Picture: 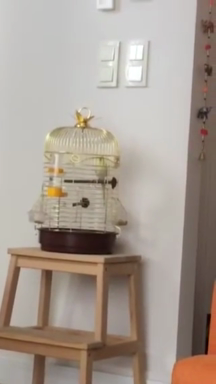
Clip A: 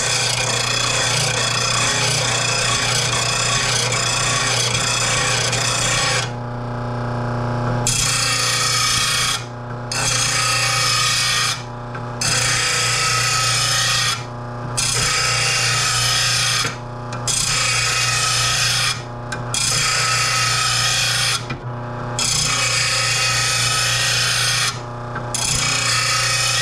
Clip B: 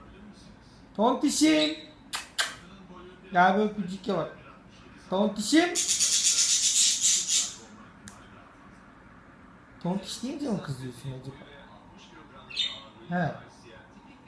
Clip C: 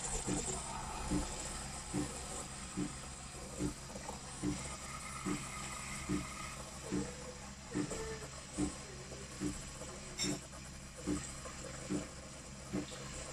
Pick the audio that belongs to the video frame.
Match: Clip B